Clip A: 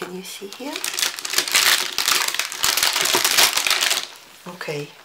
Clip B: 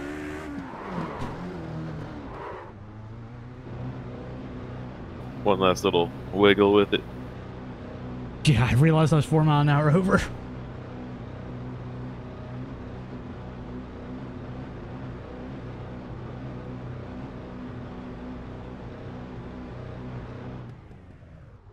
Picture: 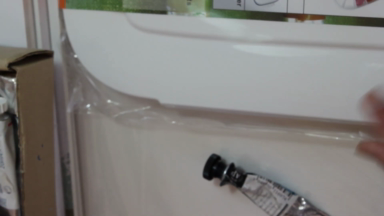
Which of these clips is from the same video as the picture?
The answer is A